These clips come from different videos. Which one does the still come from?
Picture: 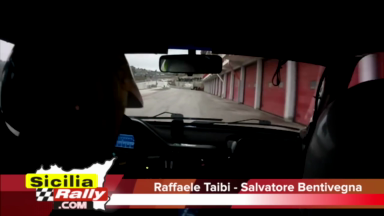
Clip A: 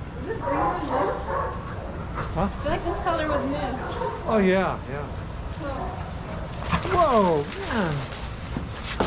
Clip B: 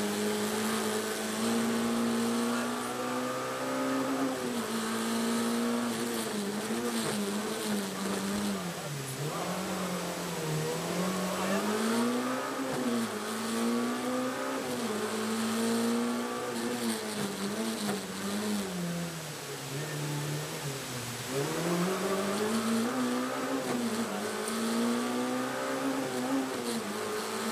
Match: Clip B